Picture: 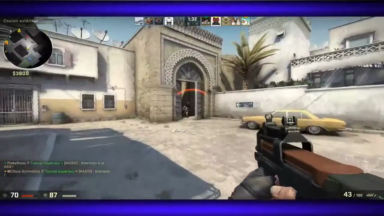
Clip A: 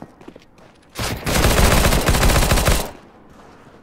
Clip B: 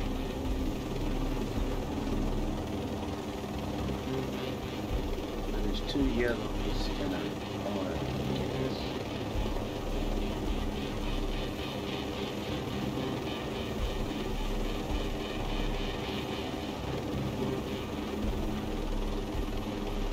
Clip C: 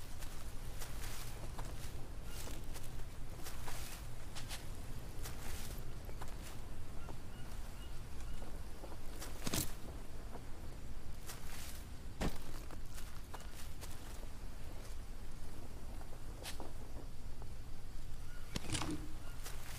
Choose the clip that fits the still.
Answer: A